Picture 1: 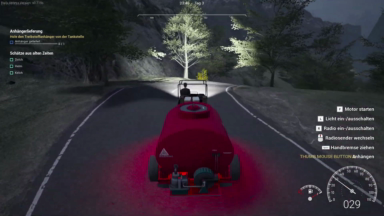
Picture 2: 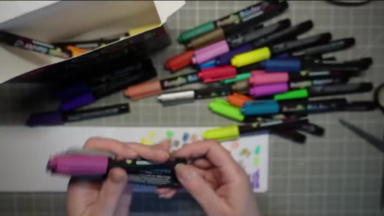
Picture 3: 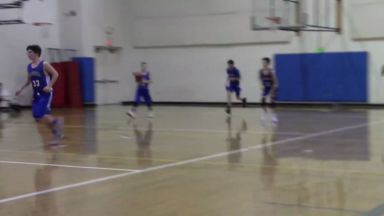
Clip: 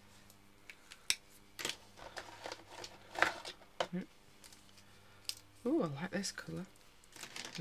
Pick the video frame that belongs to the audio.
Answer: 2